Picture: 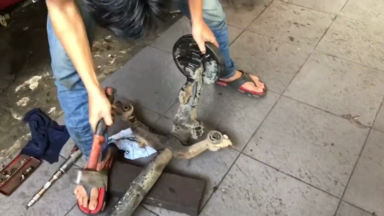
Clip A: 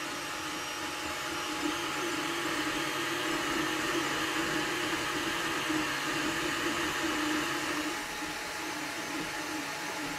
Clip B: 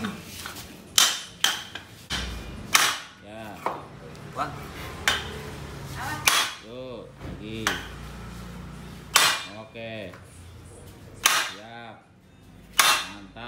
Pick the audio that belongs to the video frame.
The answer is B